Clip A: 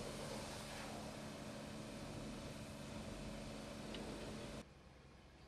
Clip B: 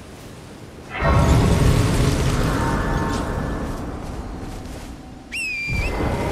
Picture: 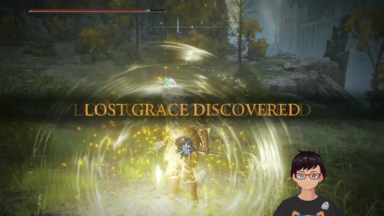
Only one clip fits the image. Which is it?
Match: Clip B